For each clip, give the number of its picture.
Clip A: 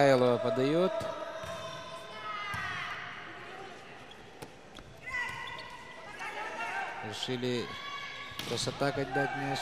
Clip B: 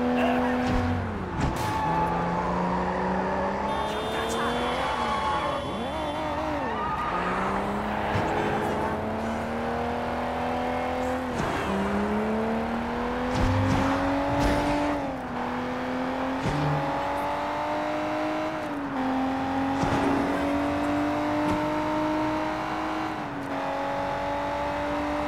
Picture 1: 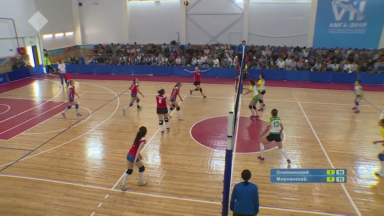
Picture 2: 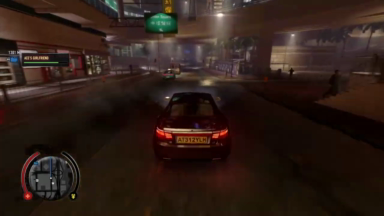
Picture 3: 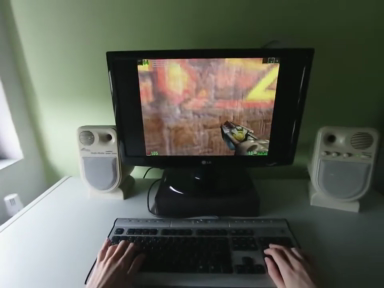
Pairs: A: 1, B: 2